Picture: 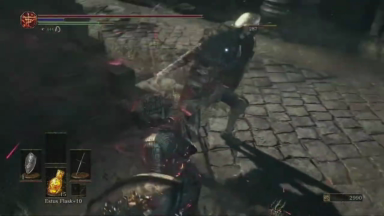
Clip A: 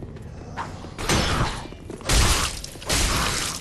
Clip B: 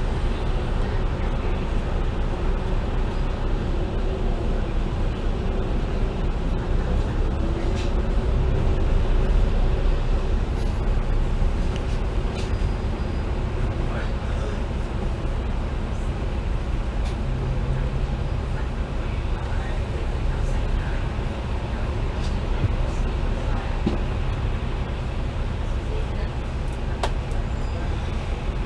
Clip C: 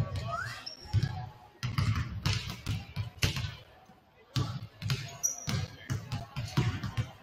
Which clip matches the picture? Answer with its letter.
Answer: A